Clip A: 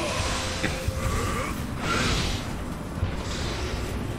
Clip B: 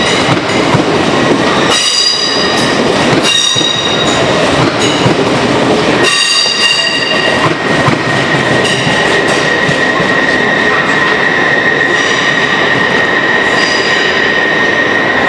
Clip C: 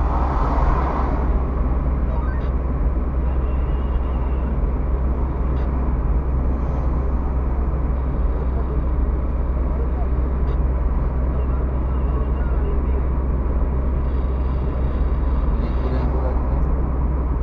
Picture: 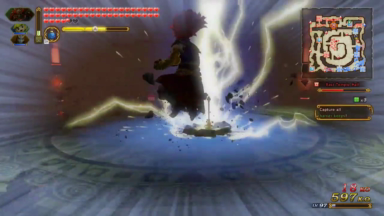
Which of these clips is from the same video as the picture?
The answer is A